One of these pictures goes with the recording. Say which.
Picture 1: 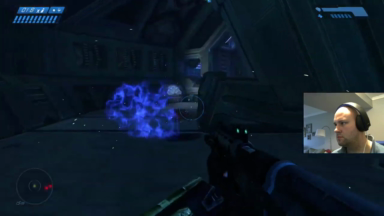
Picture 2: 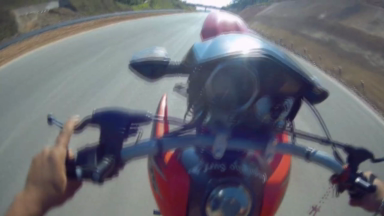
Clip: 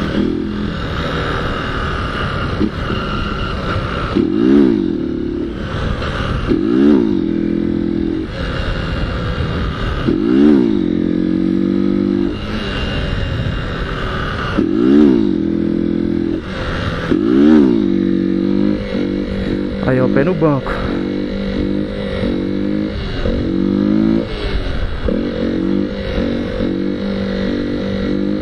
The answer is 2